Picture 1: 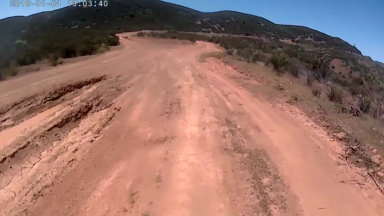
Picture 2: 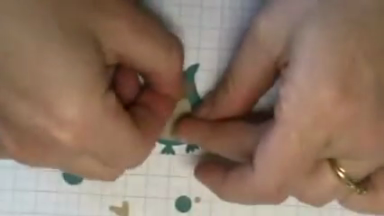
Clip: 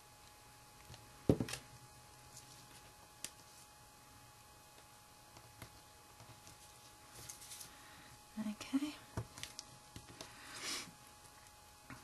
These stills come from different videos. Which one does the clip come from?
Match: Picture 2